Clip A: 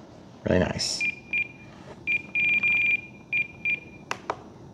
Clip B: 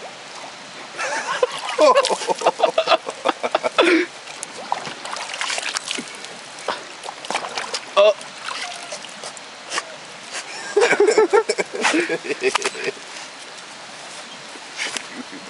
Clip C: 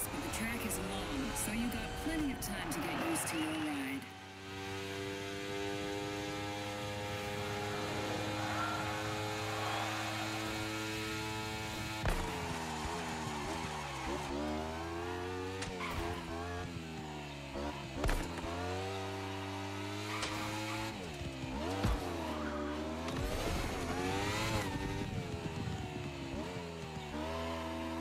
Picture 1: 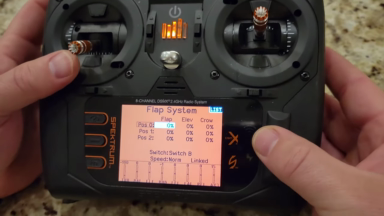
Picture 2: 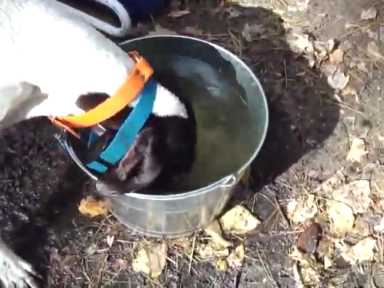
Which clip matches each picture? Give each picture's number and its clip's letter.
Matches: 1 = A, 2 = B